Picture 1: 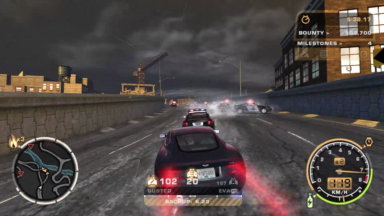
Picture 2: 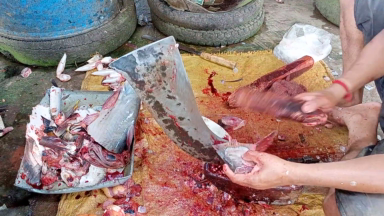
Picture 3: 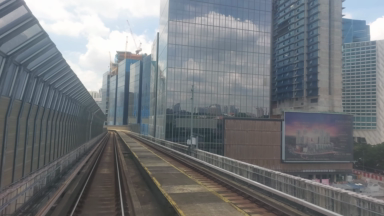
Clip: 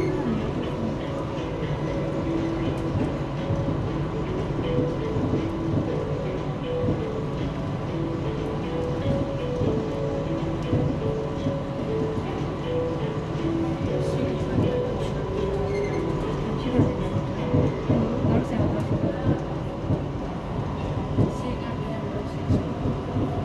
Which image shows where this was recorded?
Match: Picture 3